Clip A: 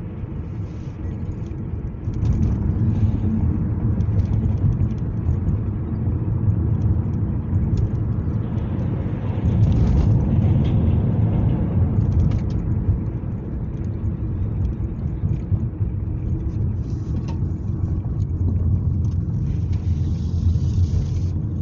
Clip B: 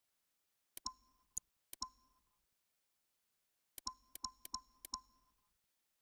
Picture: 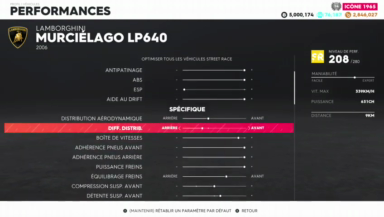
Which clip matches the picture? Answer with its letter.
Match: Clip B